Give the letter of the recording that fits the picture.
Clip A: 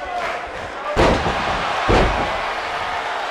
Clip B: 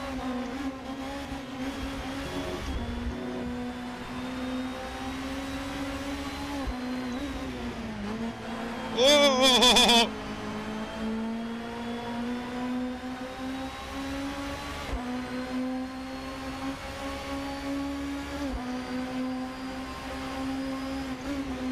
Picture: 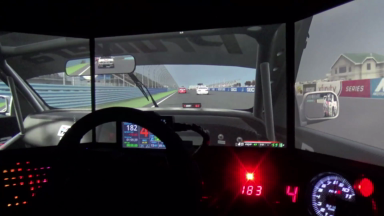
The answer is B